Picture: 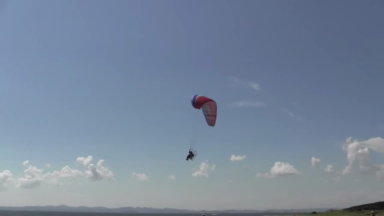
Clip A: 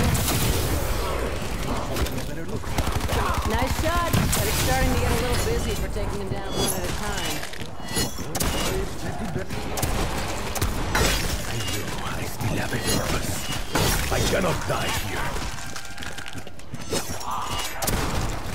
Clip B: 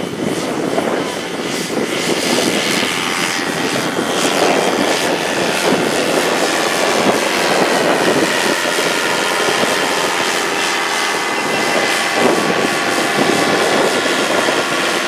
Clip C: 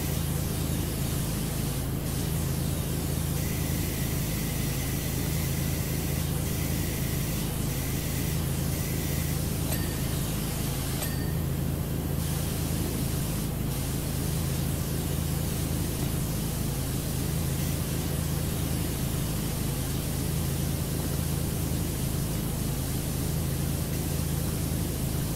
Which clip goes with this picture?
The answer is B